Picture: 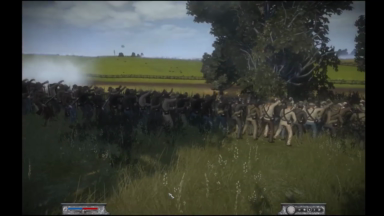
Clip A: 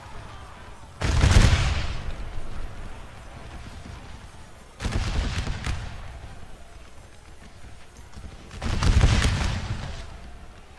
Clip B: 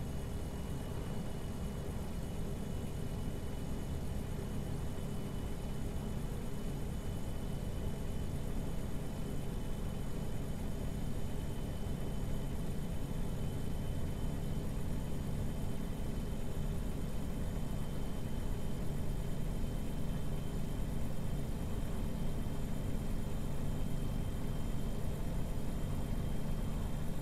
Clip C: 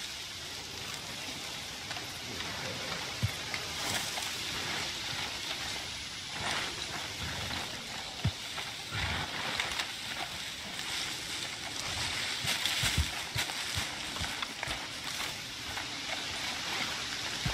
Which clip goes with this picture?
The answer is A